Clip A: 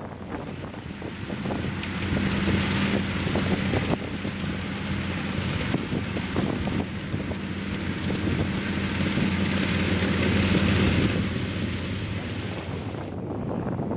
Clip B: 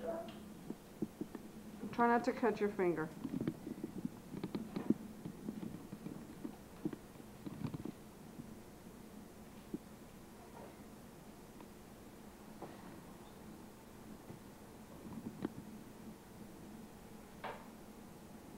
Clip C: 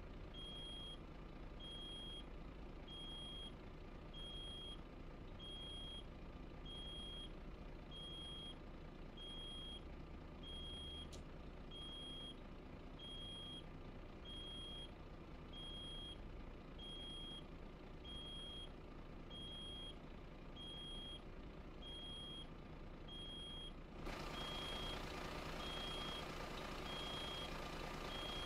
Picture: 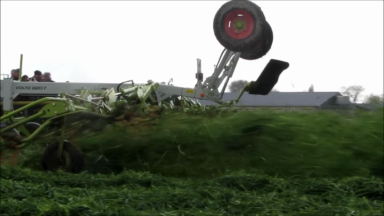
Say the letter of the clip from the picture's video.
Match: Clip A